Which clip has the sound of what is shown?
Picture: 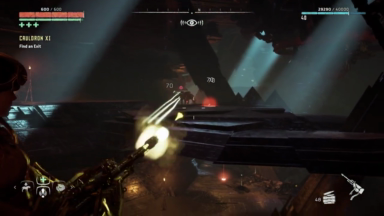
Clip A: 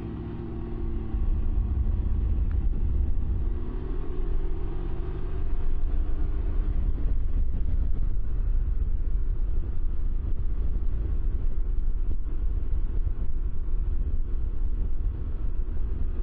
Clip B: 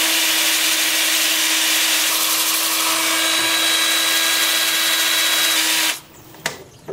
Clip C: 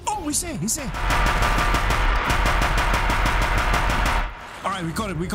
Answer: C